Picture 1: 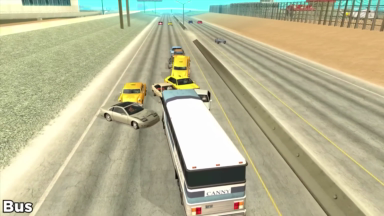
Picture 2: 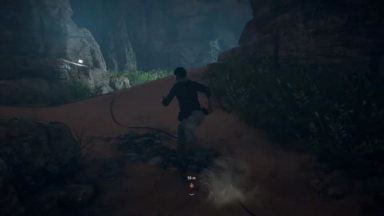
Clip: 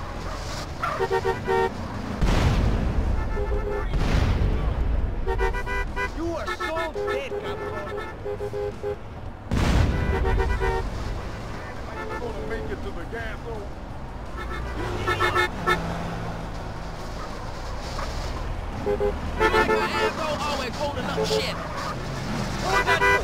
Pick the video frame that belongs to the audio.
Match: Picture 1